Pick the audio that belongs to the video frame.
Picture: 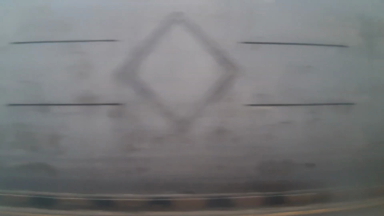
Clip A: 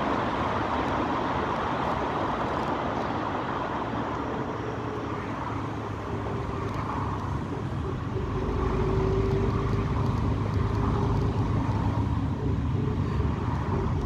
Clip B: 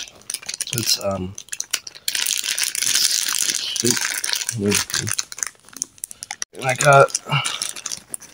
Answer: A